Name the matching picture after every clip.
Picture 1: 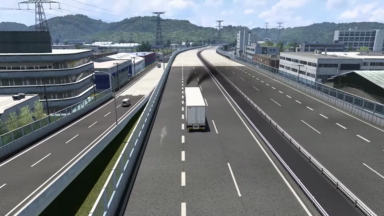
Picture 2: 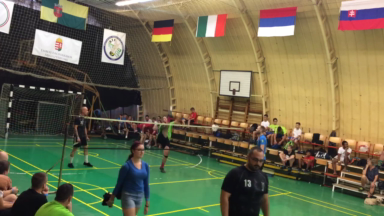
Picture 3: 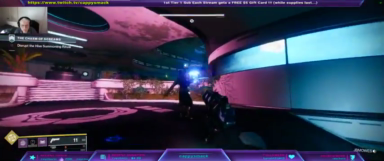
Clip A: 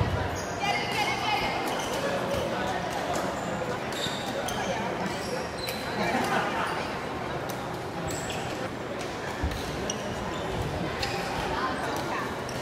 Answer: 2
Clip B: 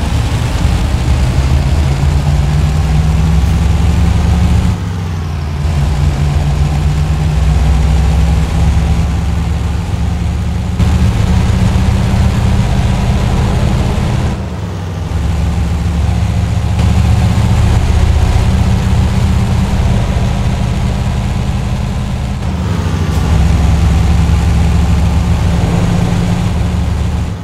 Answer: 1